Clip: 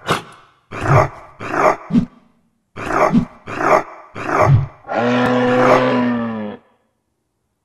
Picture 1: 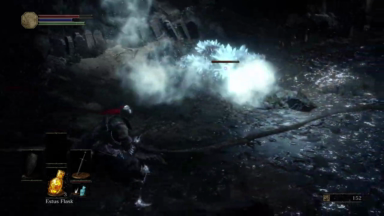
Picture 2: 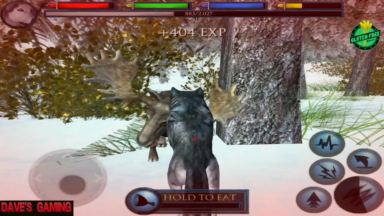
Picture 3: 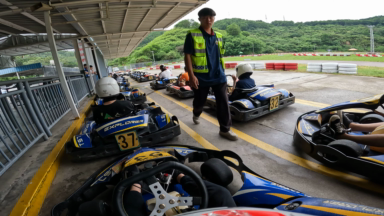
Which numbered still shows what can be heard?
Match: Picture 2